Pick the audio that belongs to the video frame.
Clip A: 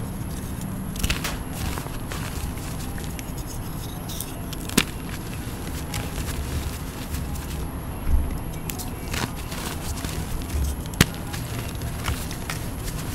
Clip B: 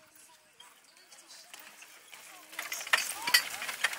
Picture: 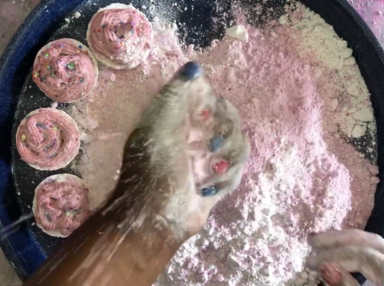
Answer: A